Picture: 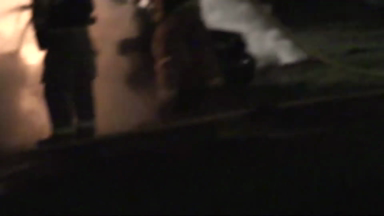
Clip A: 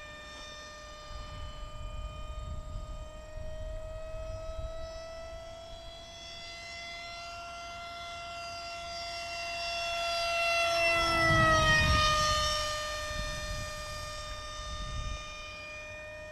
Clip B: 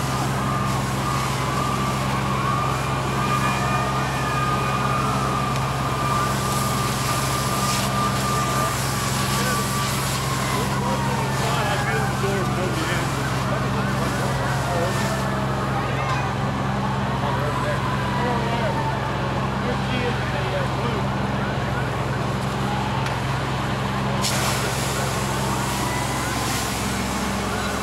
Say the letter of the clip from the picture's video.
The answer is B